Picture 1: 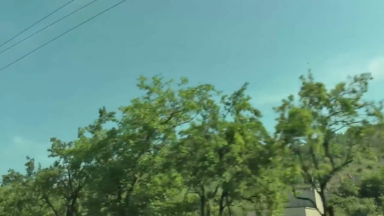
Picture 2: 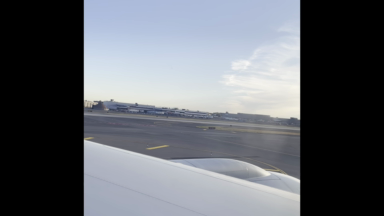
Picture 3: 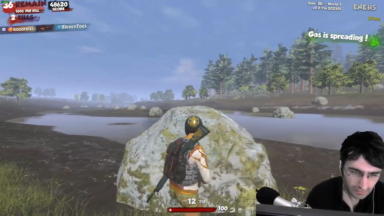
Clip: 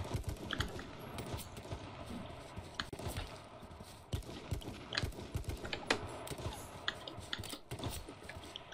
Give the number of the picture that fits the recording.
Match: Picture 3